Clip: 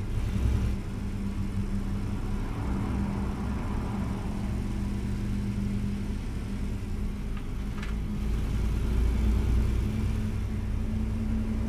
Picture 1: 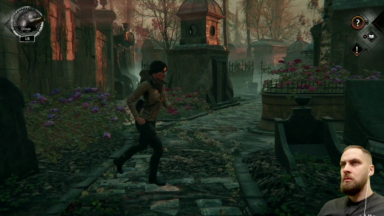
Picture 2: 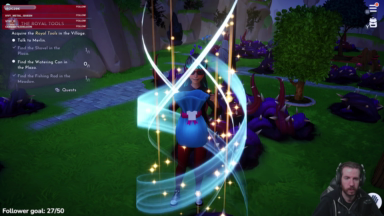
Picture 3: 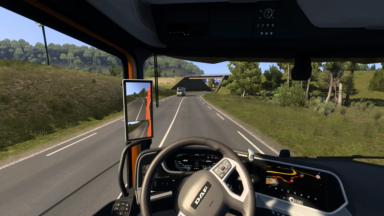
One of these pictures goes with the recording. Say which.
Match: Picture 3